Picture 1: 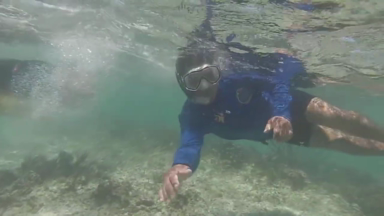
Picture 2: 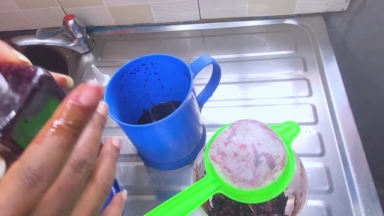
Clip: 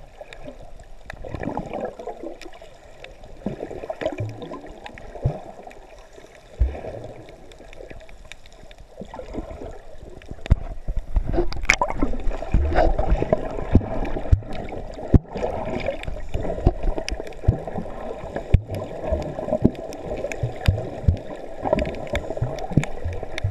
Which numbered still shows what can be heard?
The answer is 1